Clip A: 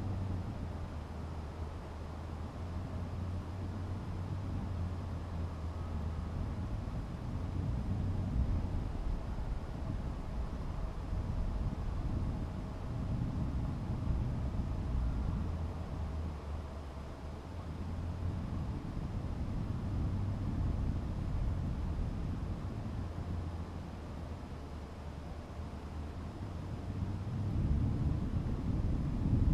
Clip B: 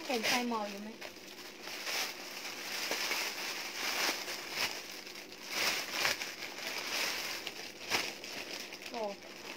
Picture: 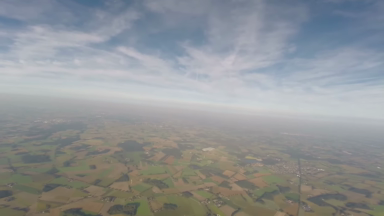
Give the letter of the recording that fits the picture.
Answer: A